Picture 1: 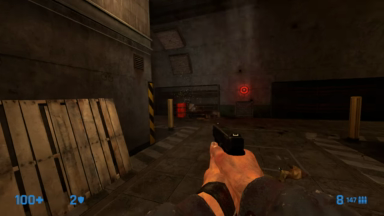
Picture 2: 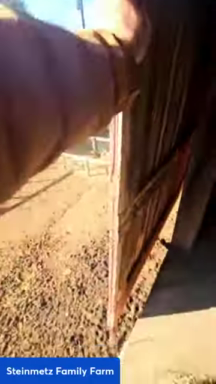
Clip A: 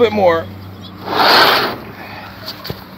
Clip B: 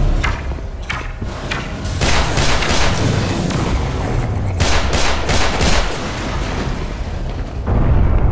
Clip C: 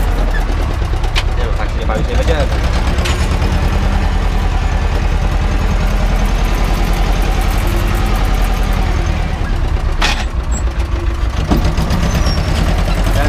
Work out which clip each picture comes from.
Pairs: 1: B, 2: A